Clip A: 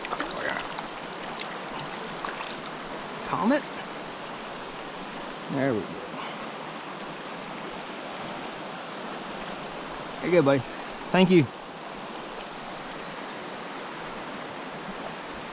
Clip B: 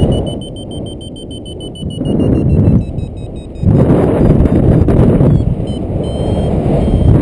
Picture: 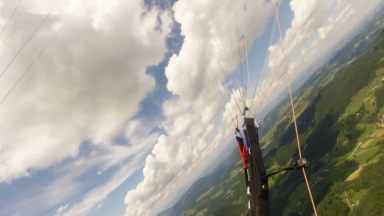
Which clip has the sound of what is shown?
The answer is B